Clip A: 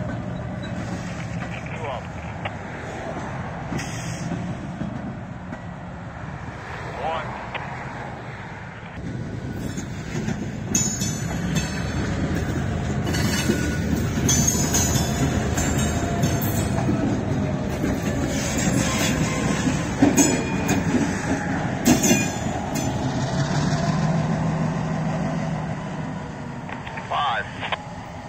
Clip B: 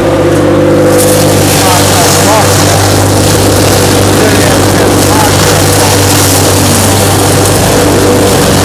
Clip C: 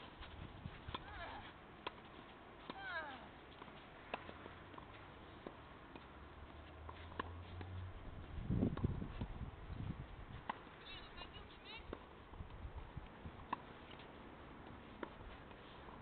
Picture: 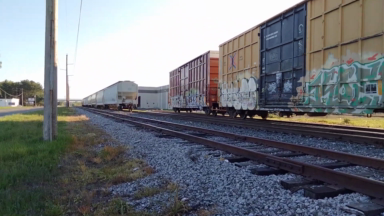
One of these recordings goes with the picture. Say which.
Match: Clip A